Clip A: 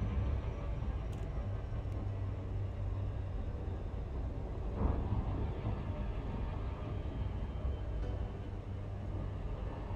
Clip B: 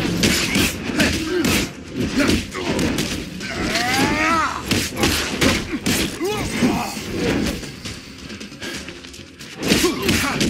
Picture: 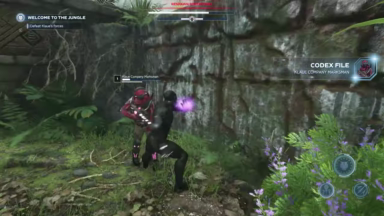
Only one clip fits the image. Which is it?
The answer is B